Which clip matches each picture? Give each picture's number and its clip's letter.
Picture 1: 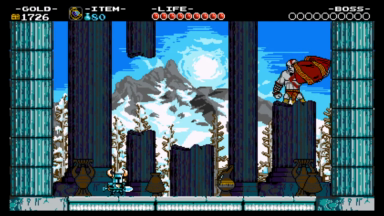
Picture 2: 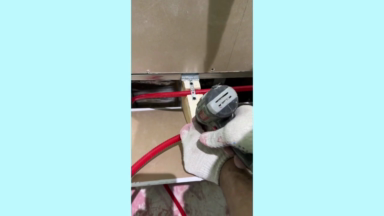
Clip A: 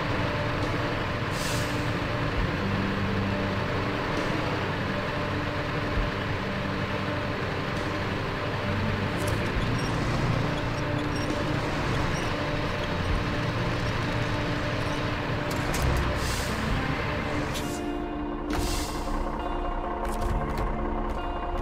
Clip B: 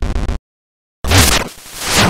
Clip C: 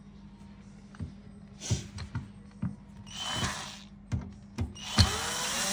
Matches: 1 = B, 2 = C